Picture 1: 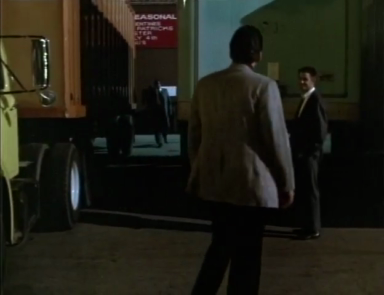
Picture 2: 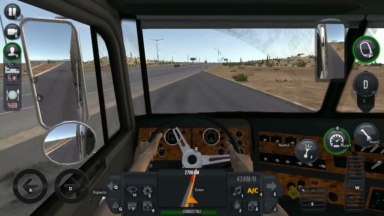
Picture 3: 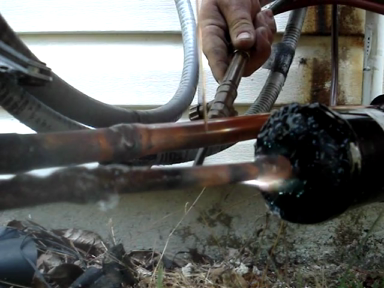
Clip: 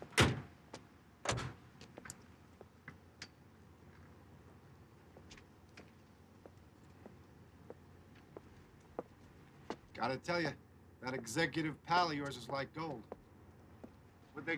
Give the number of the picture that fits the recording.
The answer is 1